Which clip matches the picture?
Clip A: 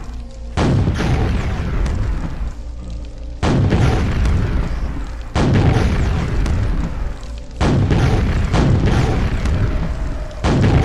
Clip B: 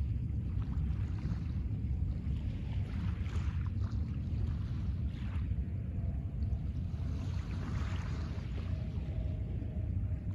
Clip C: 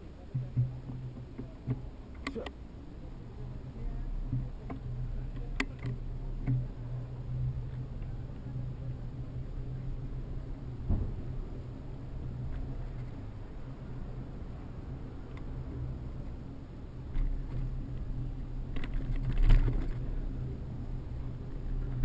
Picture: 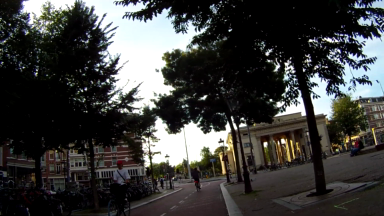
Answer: C